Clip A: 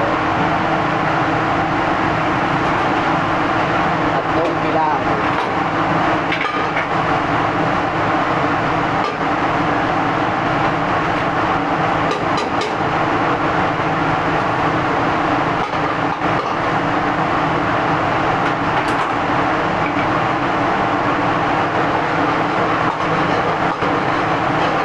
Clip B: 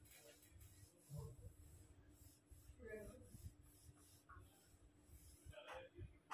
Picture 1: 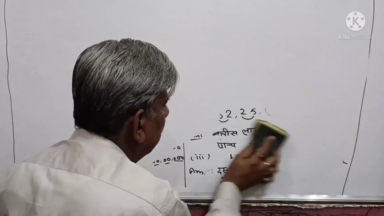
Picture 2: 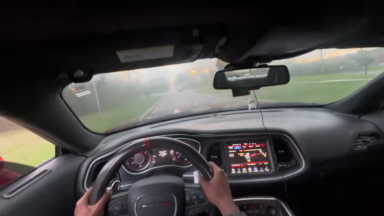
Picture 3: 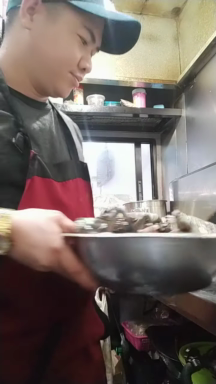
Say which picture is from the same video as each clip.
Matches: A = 3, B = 1